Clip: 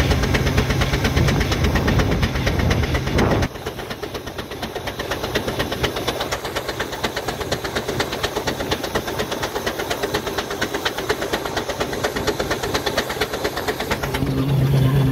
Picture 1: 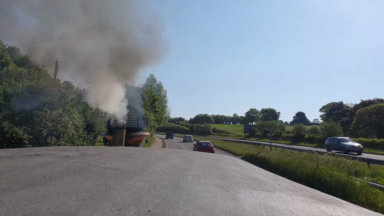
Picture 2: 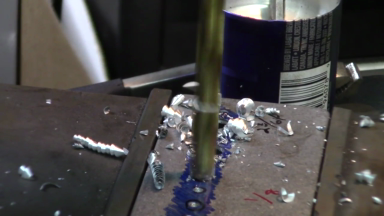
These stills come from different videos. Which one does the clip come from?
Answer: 1